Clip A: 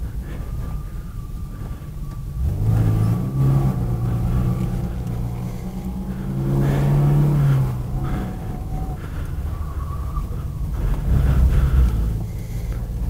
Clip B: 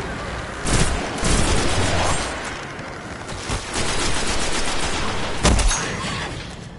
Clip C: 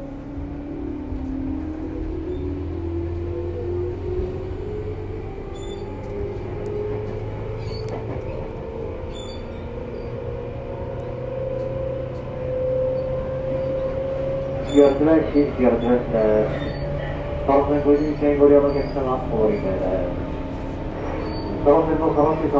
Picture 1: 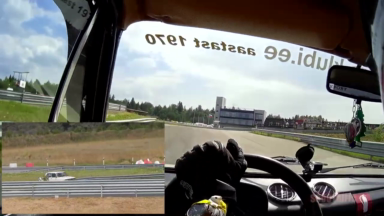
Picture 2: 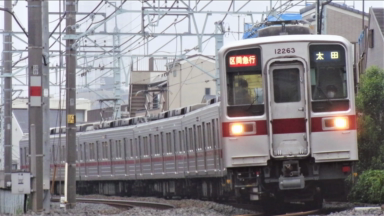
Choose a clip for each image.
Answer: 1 A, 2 C